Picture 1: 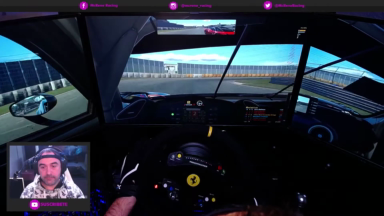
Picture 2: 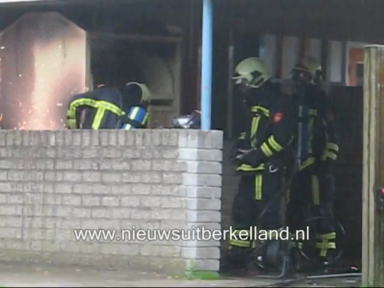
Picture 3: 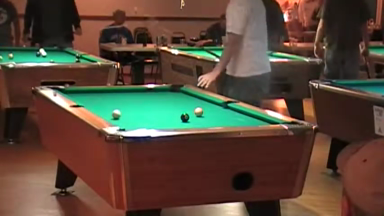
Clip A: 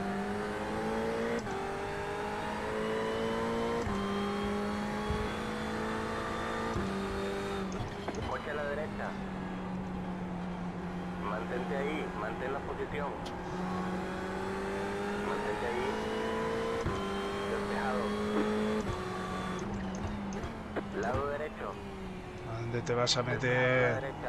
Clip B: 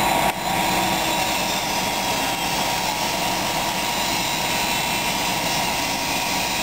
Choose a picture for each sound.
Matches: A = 1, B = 2